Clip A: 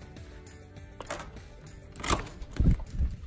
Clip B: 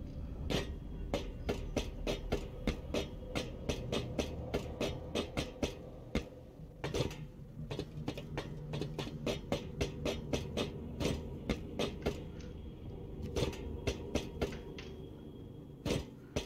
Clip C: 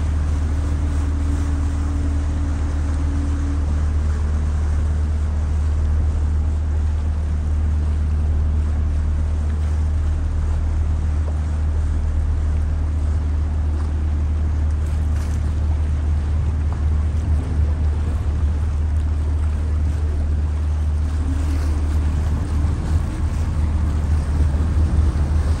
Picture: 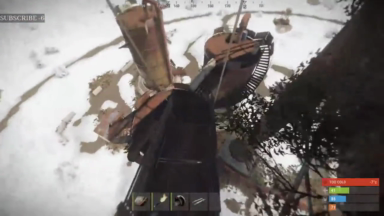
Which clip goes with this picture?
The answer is B